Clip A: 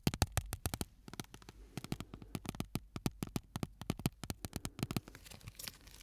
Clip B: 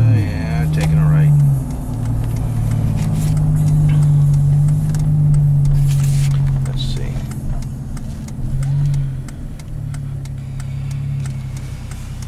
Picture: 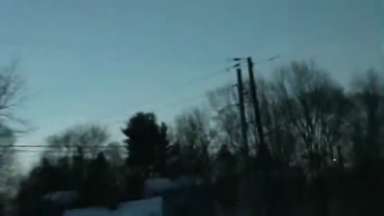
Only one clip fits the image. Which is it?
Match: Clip B